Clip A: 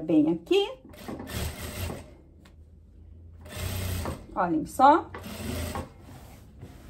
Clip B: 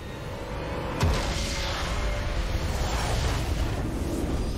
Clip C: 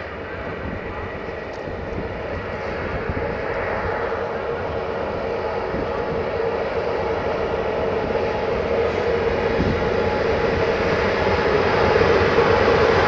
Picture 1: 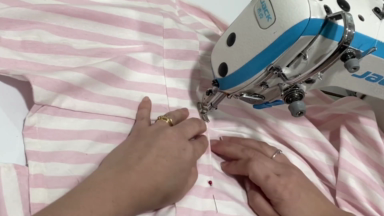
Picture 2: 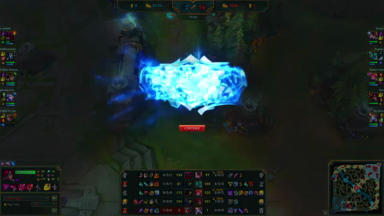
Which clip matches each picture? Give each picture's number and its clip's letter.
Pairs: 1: A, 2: B